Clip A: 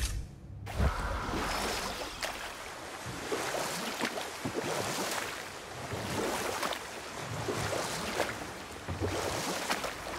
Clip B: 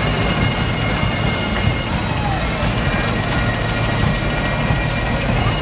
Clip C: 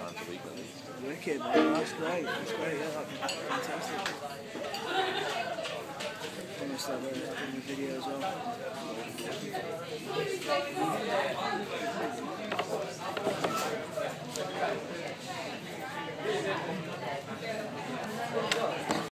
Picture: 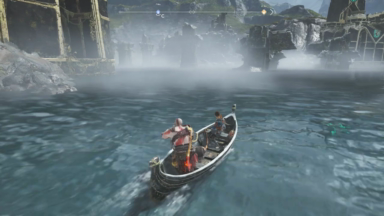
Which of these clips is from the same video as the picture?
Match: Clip A